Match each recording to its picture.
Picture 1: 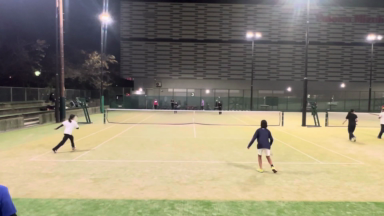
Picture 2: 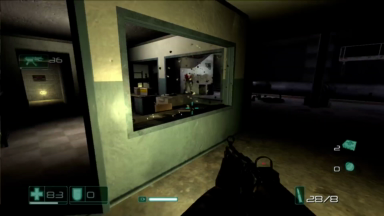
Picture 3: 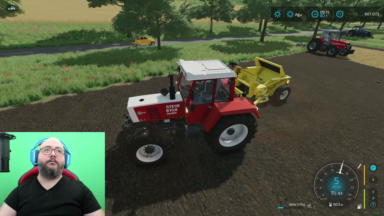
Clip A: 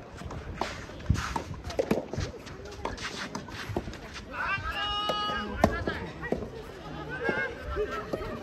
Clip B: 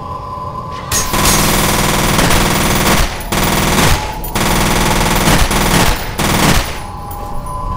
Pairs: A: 1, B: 2